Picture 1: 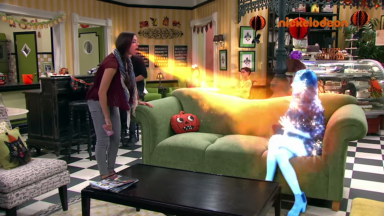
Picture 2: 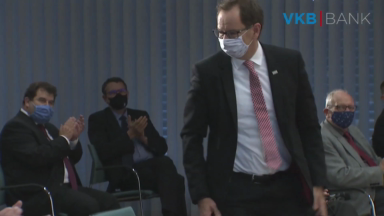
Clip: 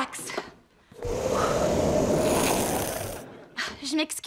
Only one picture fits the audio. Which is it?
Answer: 1